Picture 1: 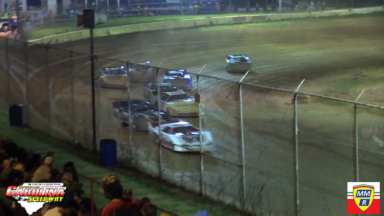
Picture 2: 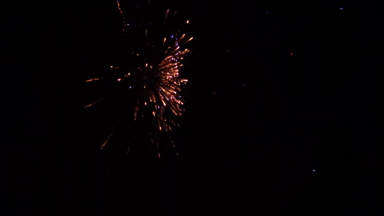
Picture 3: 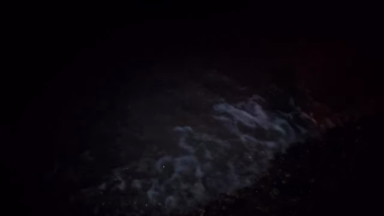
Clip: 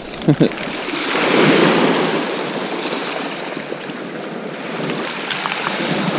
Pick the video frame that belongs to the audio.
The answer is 3